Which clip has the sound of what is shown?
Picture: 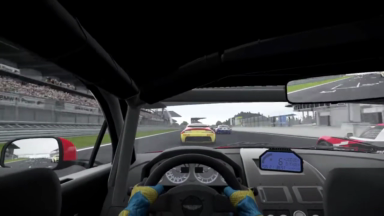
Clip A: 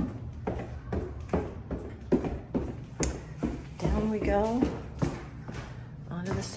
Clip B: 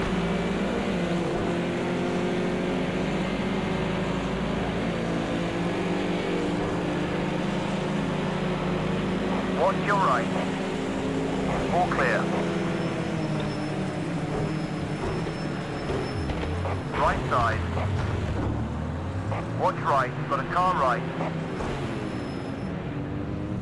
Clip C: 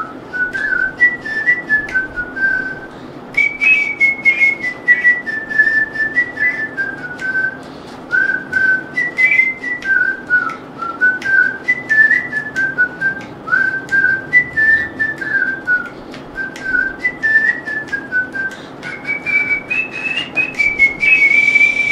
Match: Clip B